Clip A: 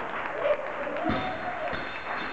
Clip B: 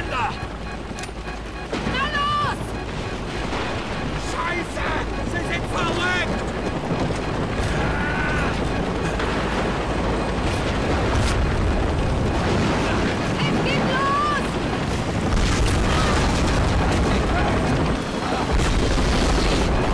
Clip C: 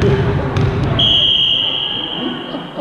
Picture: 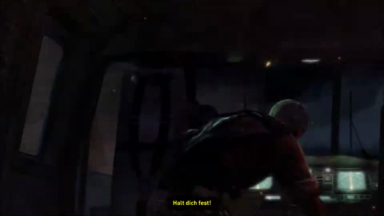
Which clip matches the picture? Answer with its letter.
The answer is B